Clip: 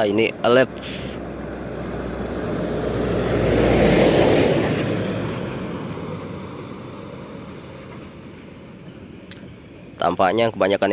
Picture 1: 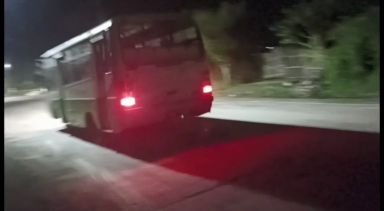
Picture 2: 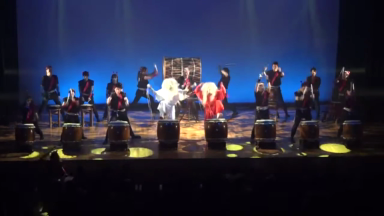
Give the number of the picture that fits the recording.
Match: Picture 1